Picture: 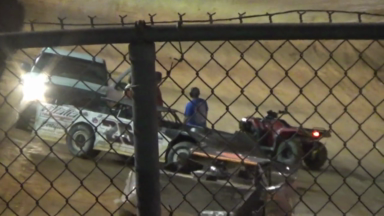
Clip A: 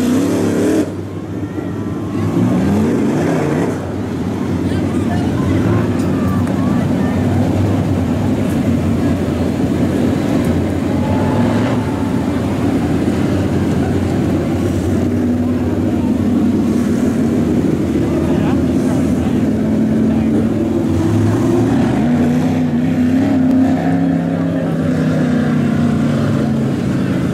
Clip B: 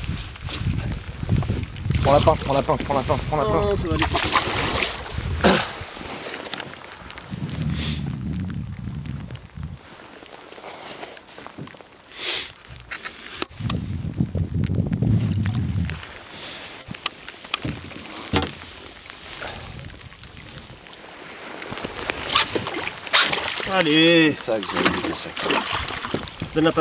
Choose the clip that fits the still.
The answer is A